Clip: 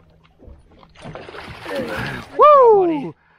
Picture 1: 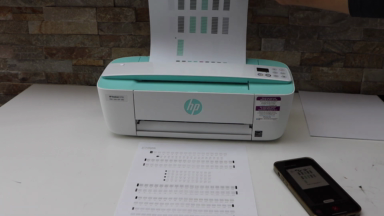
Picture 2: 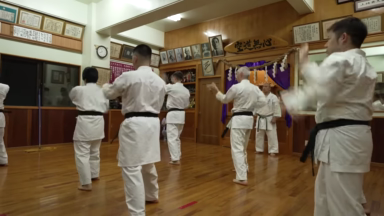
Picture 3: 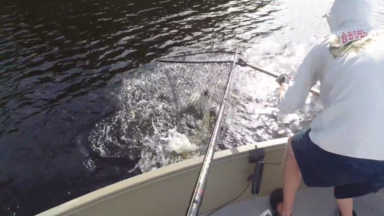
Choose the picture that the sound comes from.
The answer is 3